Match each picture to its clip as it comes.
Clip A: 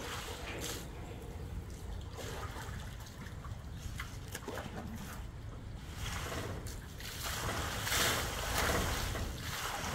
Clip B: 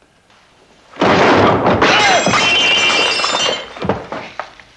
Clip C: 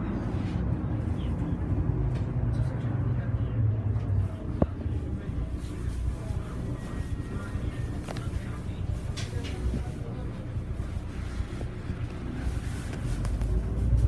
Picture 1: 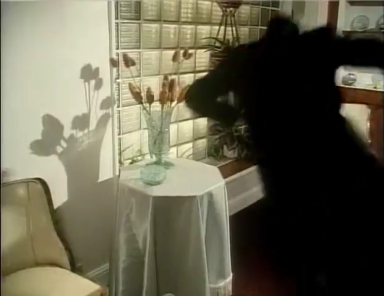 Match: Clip B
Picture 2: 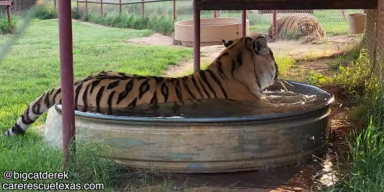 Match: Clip A